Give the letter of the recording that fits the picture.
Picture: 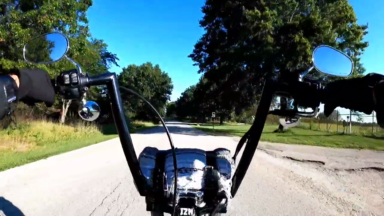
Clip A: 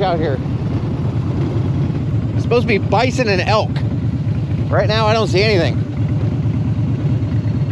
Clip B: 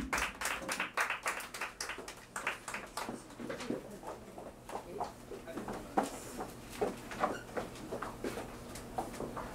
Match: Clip A